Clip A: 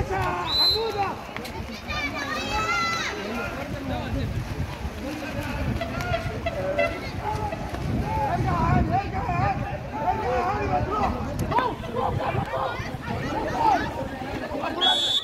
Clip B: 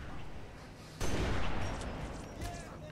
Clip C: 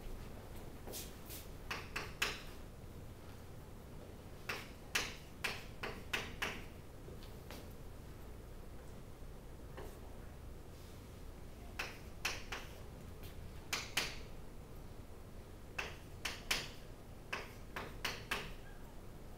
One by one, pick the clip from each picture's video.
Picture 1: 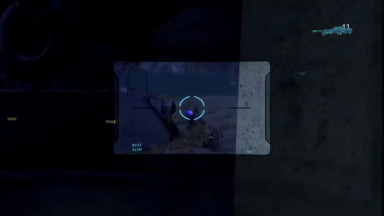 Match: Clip B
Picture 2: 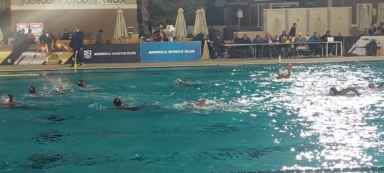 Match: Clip A